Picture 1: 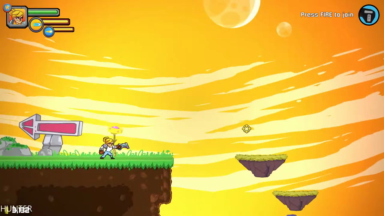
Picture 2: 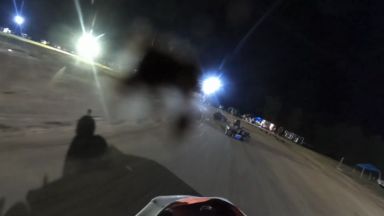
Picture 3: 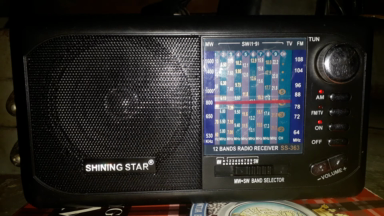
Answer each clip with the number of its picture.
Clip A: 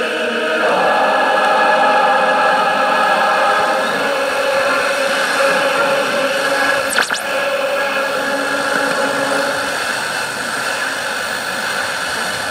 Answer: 3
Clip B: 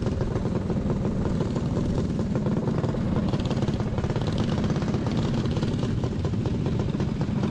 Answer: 2